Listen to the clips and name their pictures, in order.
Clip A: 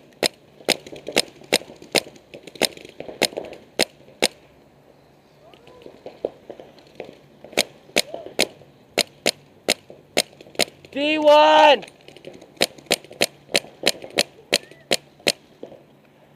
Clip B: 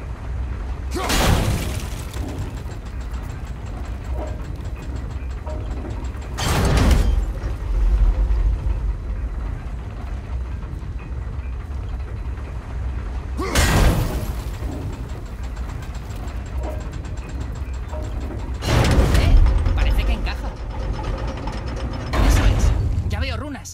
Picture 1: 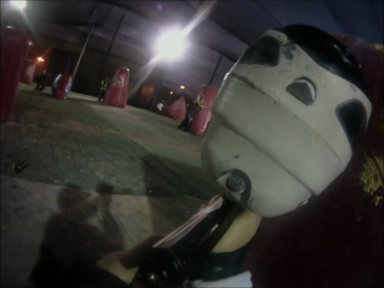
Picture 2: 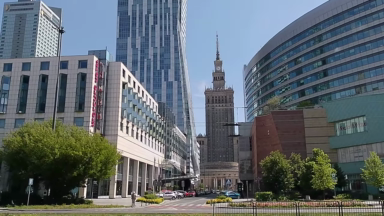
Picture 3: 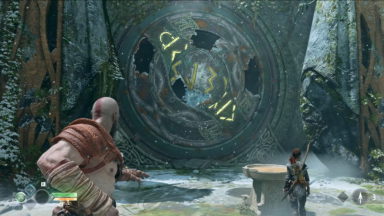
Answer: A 1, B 3